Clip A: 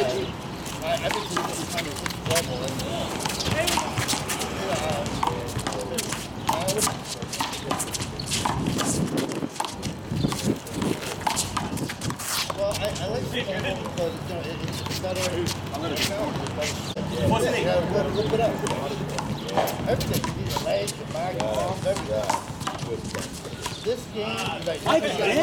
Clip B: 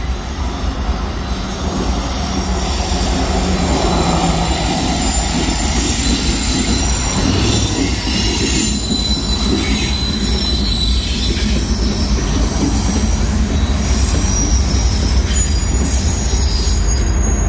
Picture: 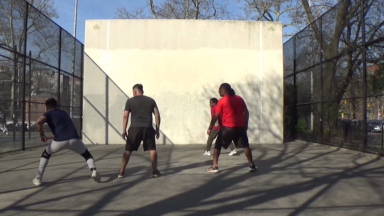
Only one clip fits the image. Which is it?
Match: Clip A